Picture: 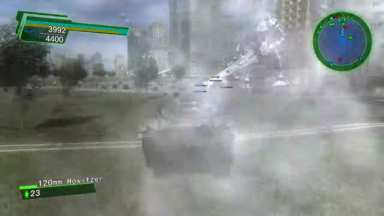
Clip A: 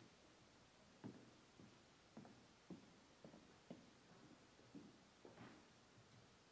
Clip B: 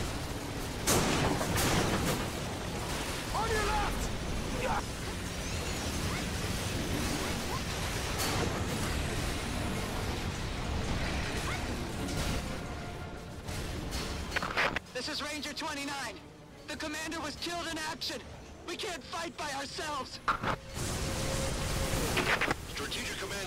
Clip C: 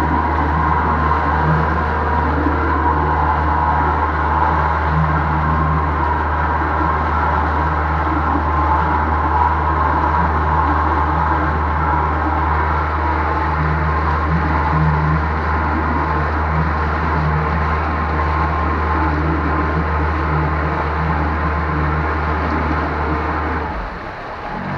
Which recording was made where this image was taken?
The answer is B